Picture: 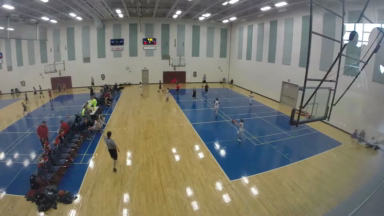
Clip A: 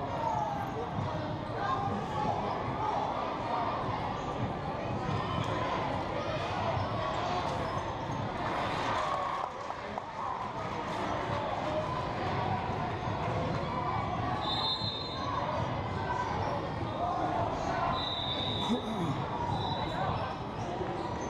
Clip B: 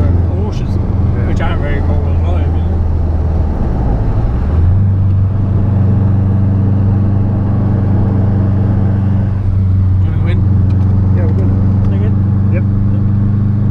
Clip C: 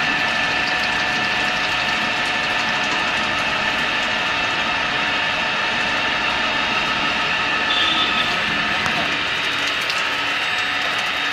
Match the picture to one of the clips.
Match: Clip A